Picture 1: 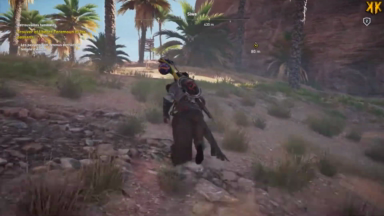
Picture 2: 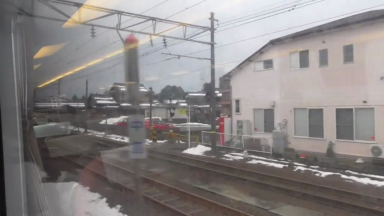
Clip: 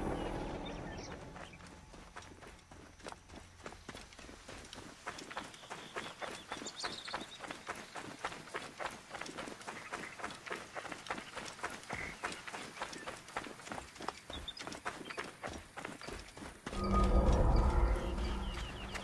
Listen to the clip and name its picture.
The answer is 1